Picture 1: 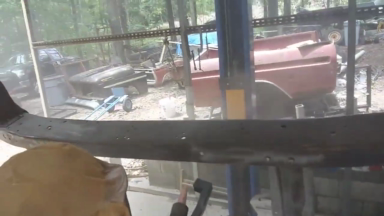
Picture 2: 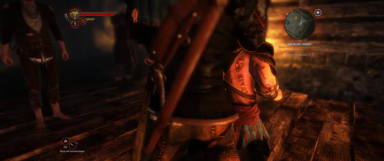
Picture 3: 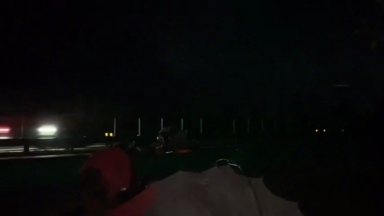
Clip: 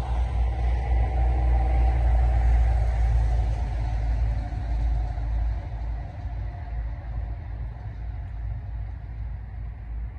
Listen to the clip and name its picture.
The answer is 3